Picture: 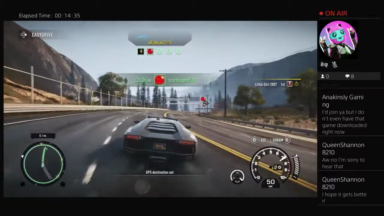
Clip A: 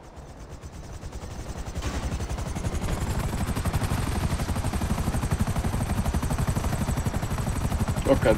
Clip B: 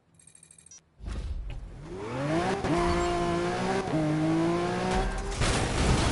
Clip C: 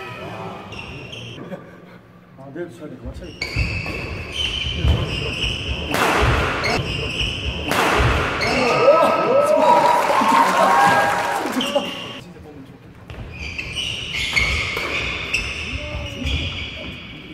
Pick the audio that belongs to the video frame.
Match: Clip B